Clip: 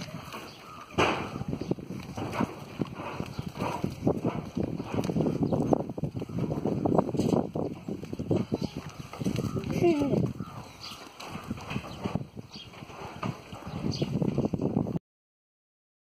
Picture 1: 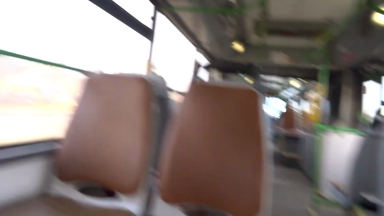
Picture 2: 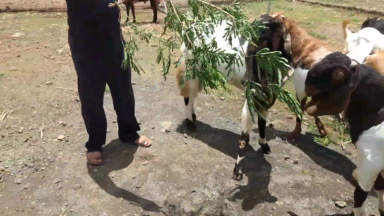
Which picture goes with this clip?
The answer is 2